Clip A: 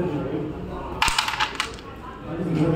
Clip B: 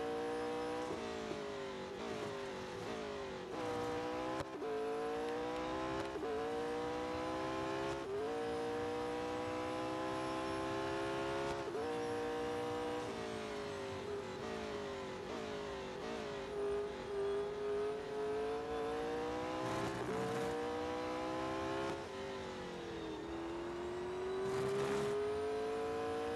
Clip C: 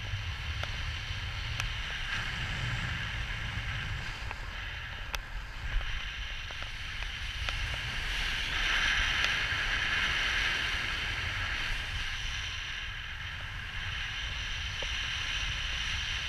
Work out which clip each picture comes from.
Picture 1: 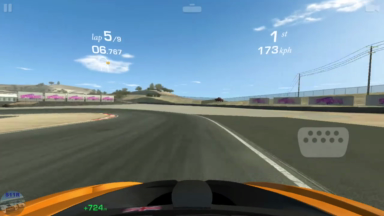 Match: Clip B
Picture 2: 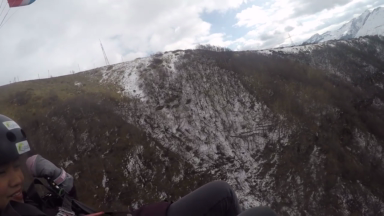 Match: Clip C